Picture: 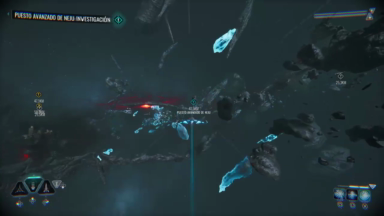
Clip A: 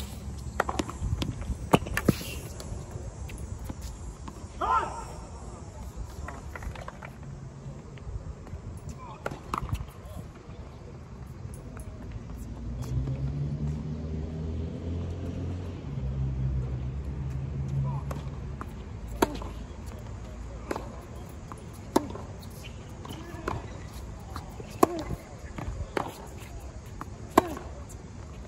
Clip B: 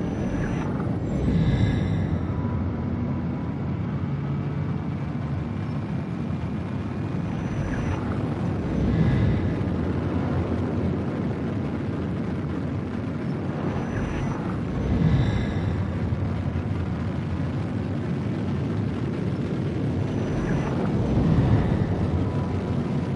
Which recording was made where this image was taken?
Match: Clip B